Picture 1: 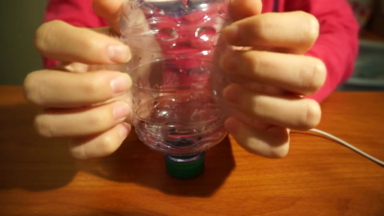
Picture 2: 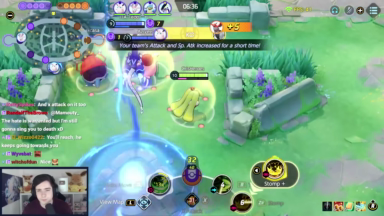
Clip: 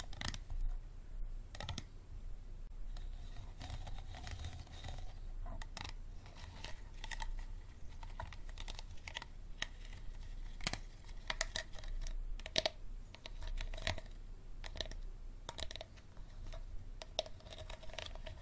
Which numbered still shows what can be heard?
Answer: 1